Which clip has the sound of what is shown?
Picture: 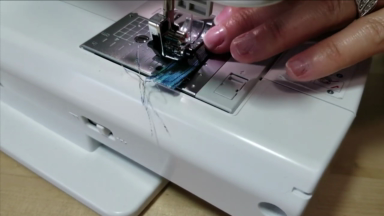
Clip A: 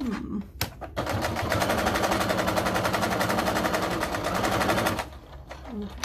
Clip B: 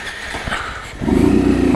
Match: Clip A